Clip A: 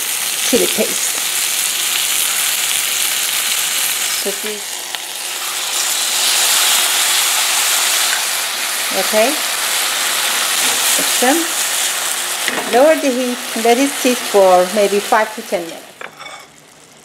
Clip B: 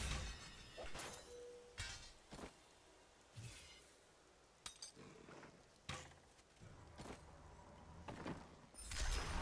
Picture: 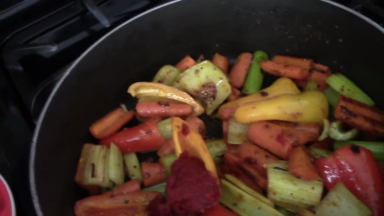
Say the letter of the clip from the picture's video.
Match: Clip A